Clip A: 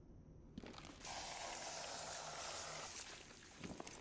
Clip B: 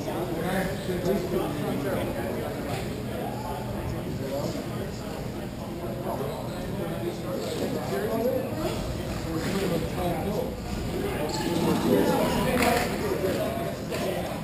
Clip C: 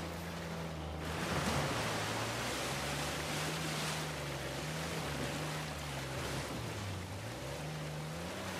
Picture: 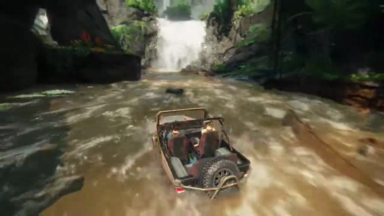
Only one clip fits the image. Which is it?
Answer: C